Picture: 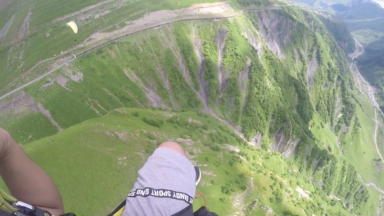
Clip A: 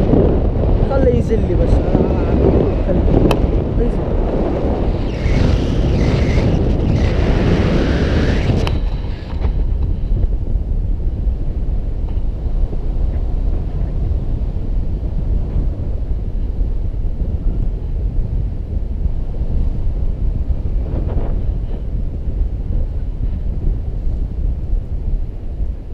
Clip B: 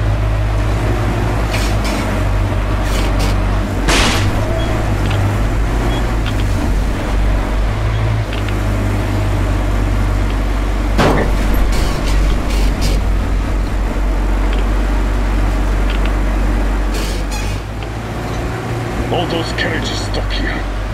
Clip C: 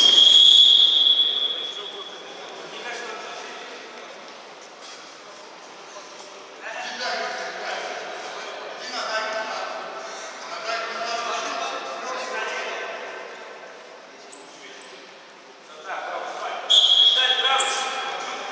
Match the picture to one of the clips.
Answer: A